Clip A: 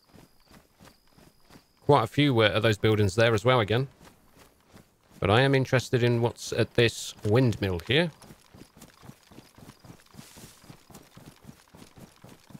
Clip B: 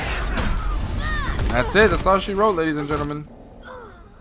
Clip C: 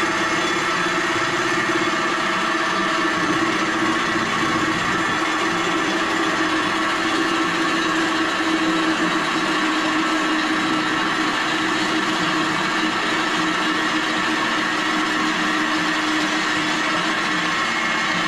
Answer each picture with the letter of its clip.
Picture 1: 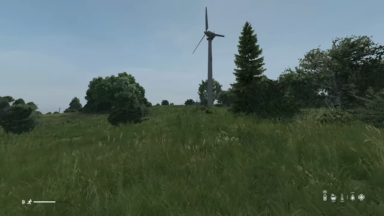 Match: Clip A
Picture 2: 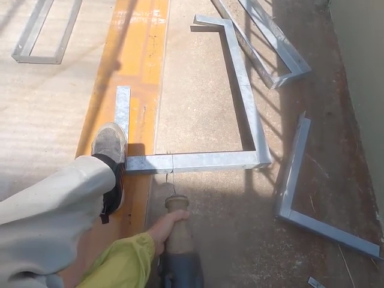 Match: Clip C